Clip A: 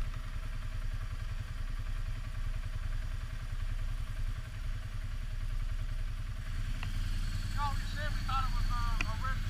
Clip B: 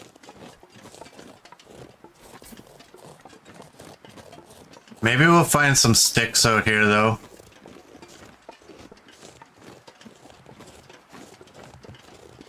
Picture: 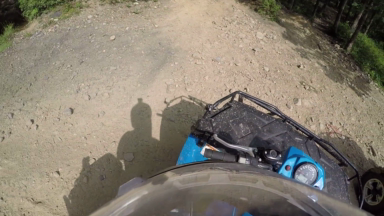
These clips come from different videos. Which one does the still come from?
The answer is A